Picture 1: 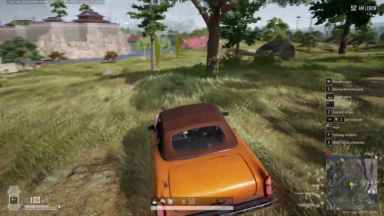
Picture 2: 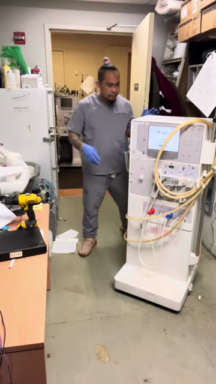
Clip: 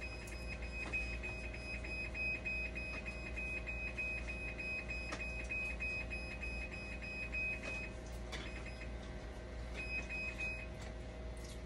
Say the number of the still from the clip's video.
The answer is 2